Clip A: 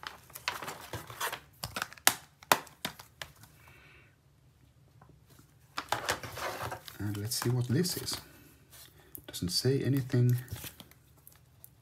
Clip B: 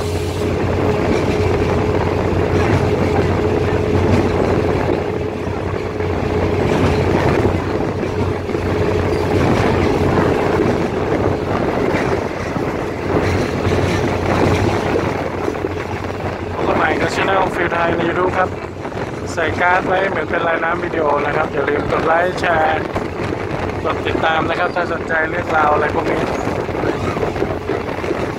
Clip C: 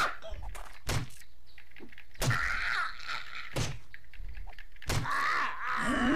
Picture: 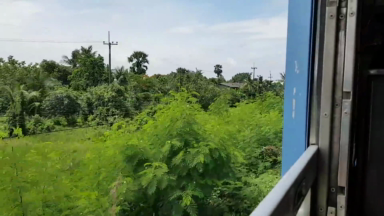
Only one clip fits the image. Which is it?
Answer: B